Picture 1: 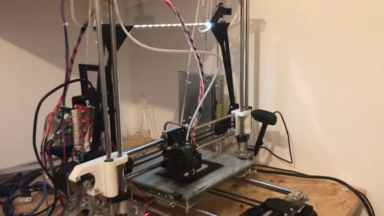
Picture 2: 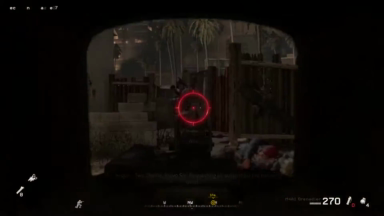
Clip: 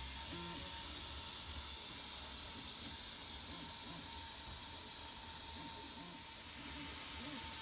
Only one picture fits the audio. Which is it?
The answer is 1